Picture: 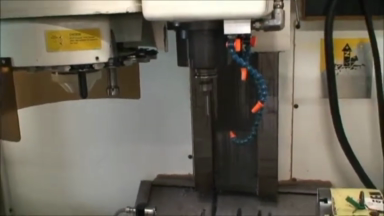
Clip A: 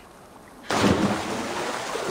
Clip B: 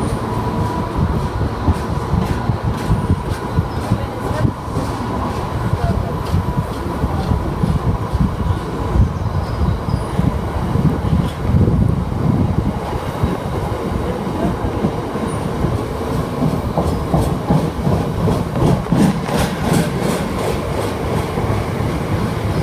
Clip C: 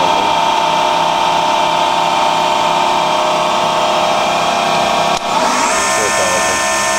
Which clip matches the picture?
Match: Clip C